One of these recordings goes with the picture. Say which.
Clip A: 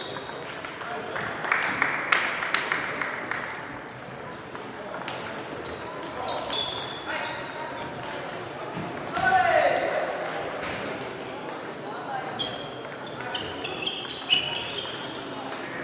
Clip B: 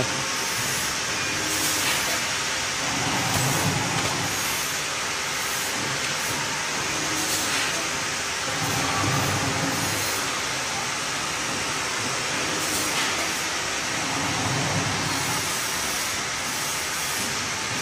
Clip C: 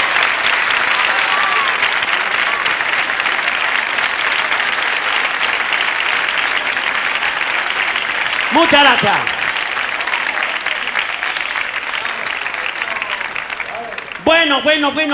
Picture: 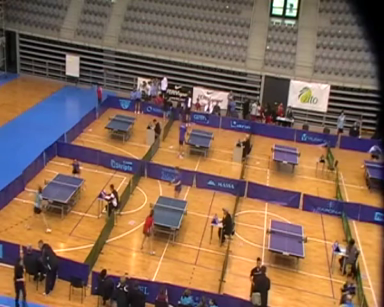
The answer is A